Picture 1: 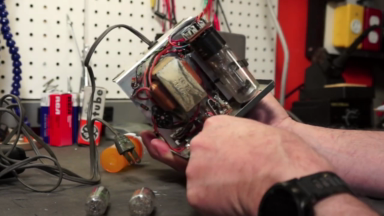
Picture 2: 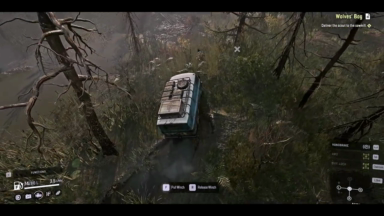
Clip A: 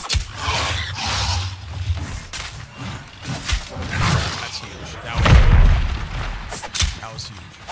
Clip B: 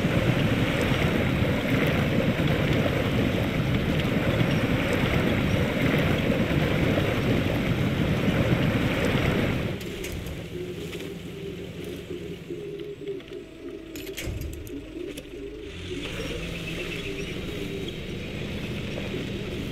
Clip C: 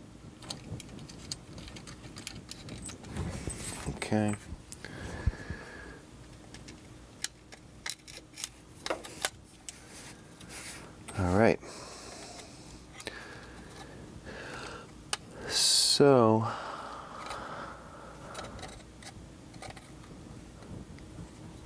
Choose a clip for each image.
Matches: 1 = C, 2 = B